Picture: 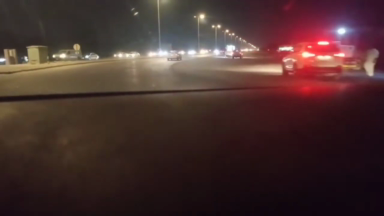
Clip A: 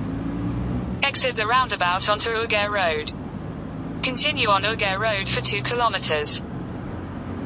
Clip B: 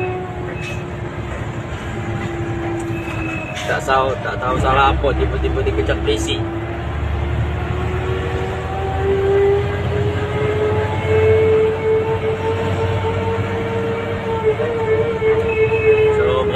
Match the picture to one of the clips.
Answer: A